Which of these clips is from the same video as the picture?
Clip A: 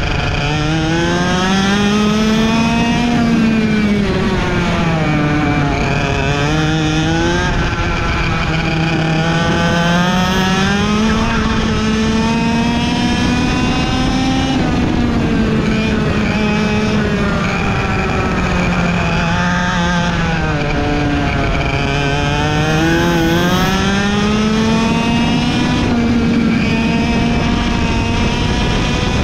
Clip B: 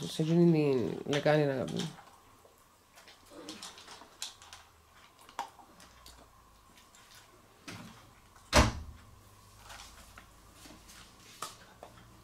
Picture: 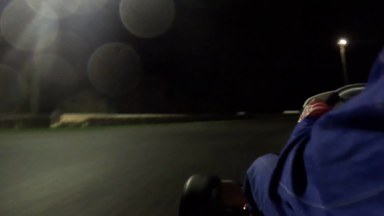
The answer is A